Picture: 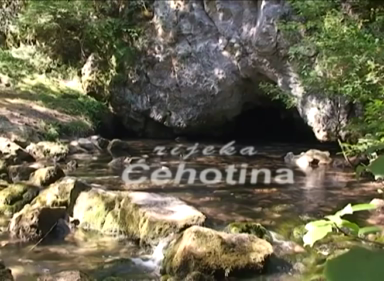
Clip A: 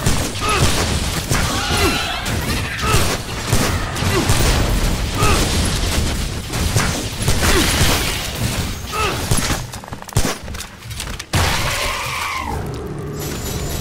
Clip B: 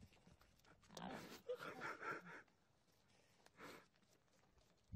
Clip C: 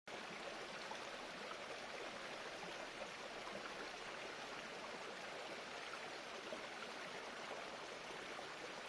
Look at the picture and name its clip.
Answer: C